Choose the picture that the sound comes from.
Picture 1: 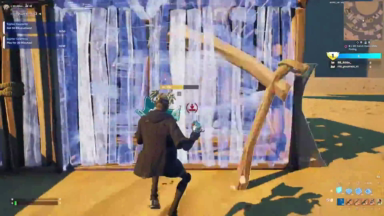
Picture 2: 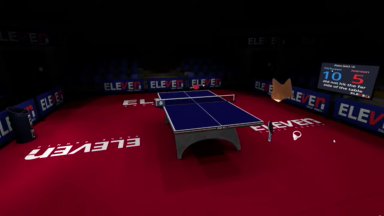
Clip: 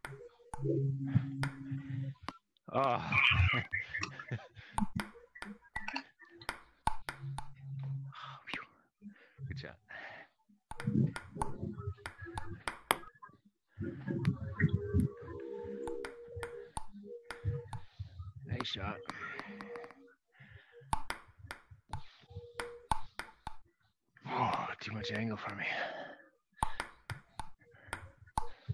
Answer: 2